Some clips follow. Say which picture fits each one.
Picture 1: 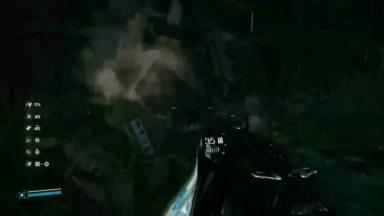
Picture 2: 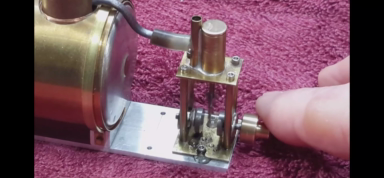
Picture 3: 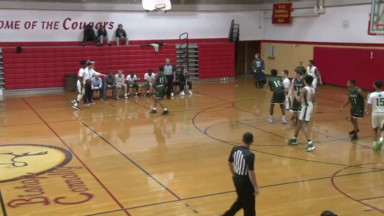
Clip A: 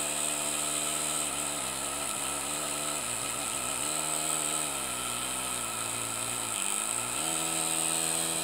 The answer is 2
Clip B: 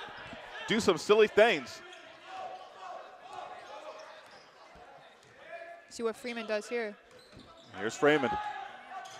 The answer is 3